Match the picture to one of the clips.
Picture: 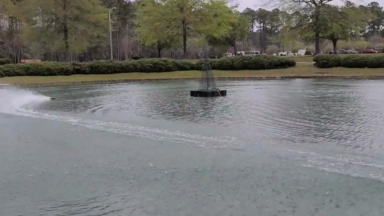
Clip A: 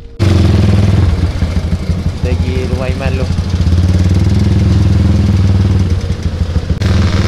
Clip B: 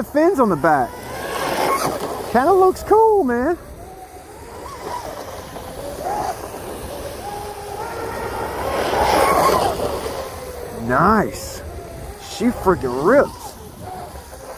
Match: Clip B